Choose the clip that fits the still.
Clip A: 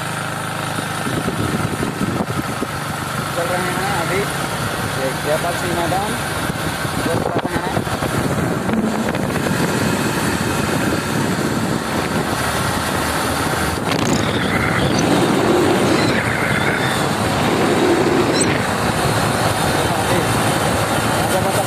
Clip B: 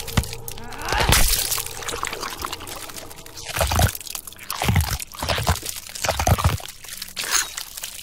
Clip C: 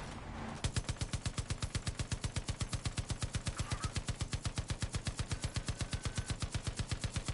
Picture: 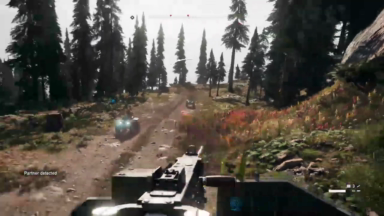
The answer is C